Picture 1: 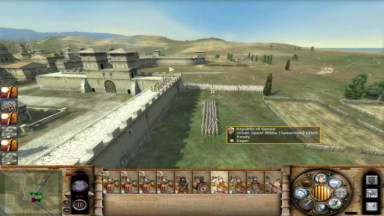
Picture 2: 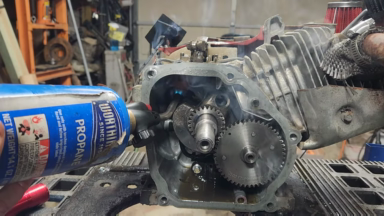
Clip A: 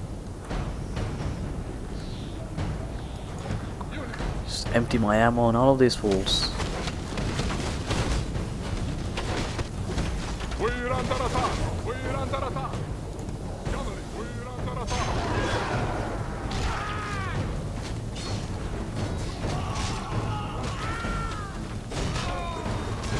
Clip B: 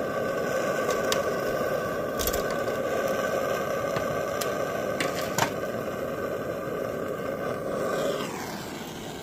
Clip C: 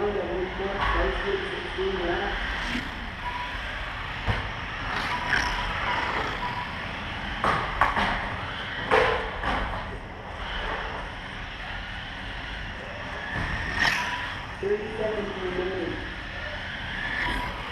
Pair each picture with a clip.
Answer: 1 A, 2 B